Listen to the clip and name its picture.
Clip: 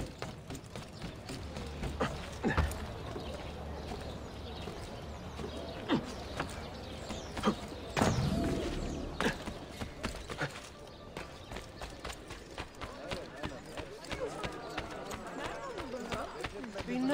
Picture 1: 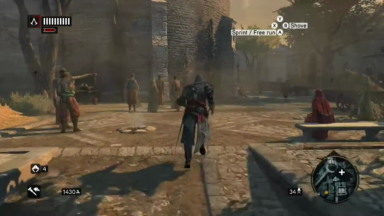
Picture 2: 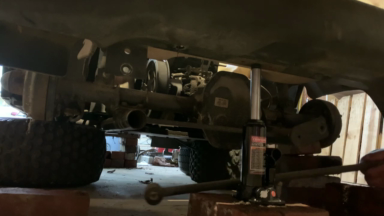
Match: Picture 1